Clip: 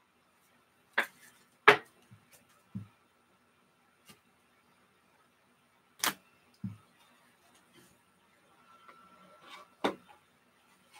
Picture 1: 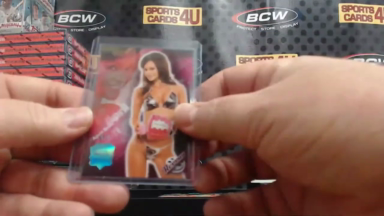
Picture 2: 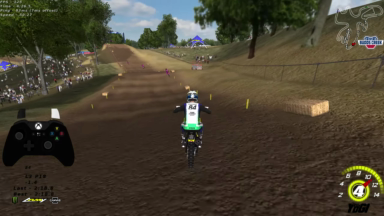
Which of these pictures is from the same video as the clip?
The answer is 1